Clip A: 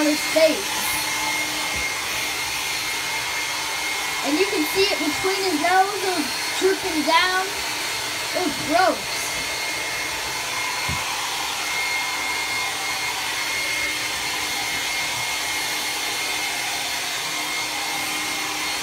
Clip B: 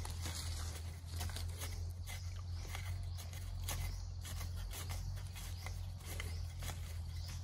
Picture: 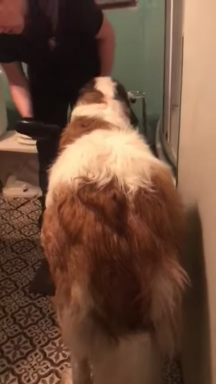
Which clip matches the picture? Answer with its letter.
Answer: A